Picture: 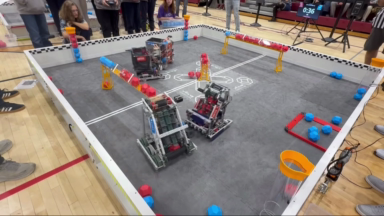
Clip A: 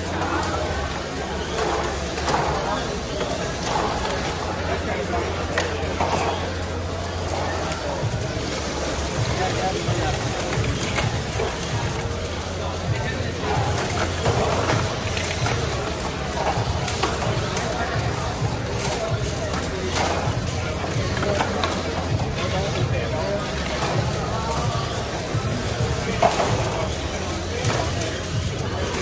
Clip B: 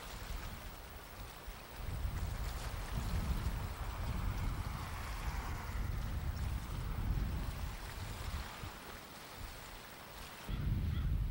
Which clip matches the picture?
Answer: A